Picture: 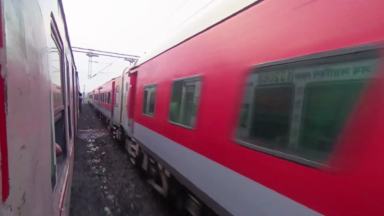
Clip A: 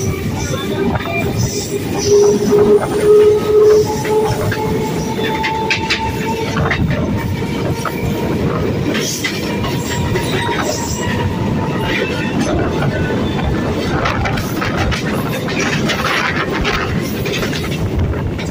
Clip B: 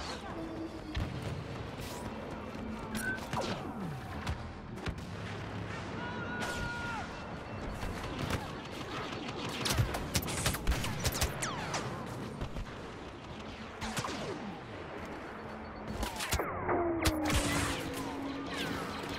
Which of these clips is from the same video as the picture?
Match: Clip A